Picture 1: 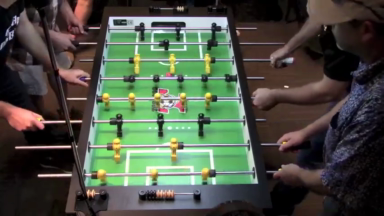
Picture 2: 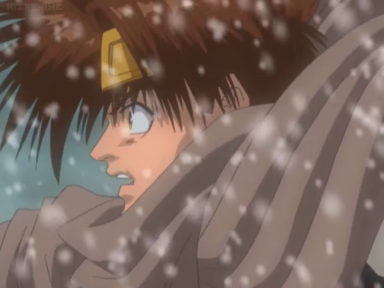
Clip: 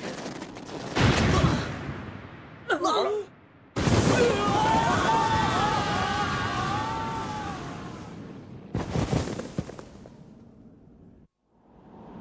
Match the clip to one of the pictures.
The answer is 2